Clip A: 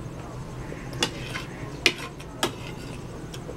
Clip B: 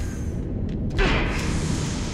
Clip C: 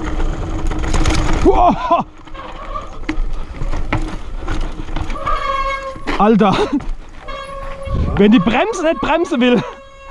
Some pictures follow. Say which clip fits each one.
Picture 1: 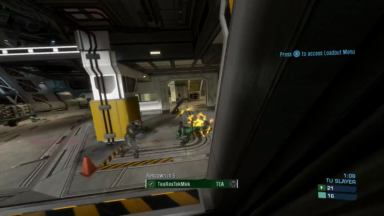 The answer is B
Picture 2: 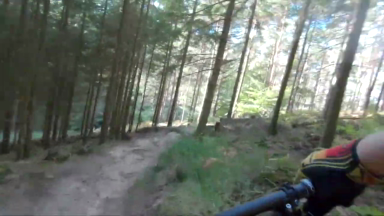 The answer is C